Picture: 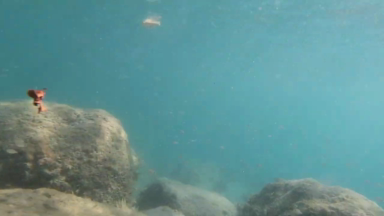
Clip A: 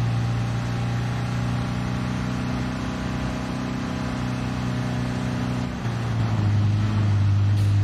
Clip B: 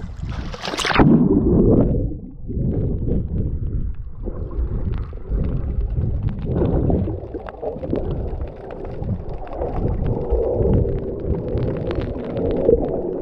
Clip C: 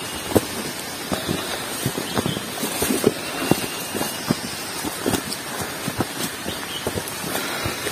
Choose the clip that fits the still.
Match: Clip B